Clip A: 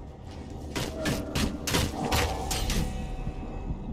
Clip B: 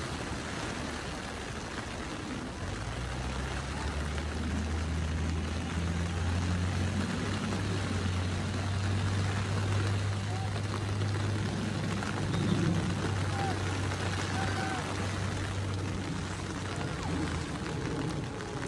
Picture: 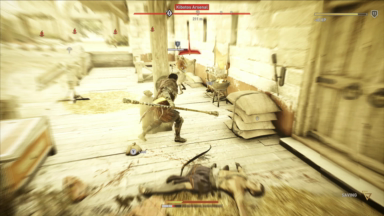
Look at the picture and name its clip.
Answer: A